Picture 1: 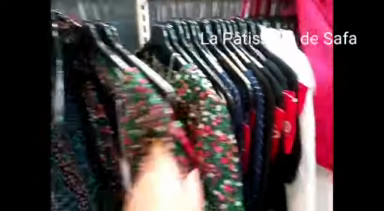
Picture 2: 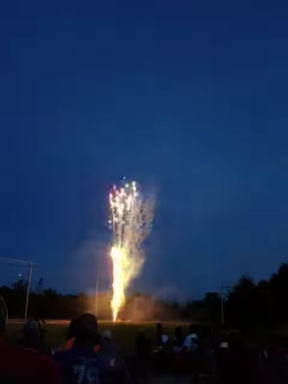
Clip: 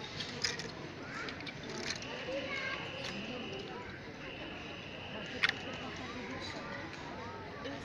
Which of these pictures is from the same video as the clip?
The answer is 1